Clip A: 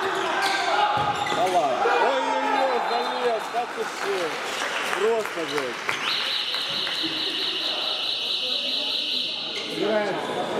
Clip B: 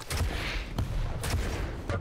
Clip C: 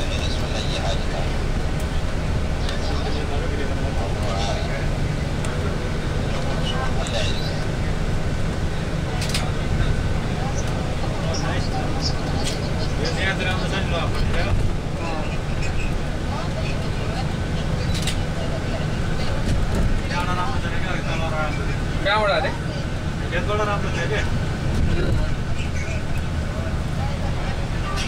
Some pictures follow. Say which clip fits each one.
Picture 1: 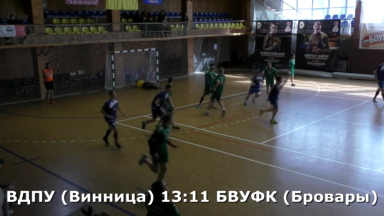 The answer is A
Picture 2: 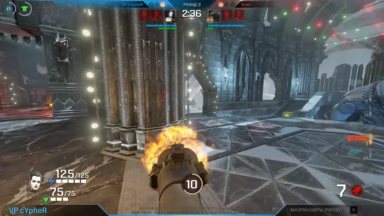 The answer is B